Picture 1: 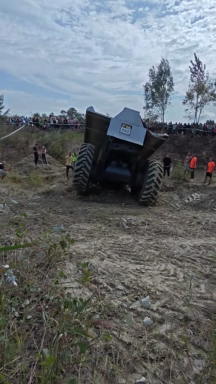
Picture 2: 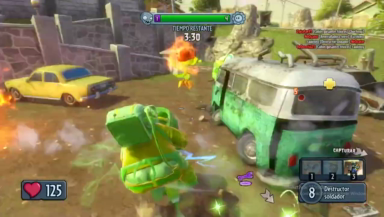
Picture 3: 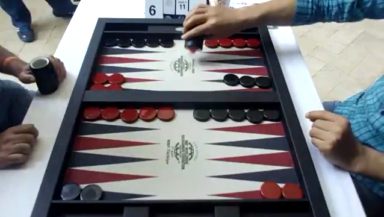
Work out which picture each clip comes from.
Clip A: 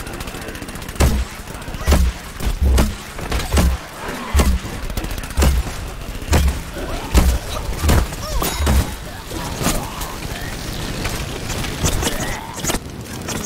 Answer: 2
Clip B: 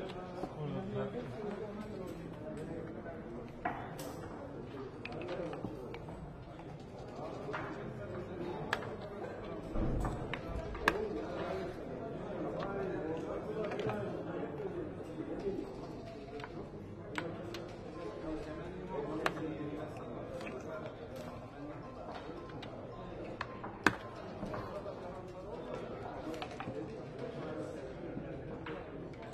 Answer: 3